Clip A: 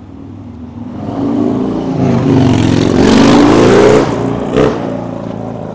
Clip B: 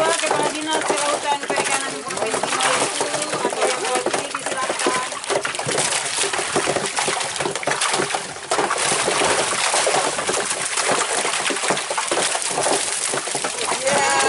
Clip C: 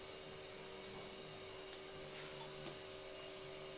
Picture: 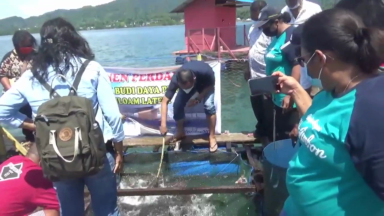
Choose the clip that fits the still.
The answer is B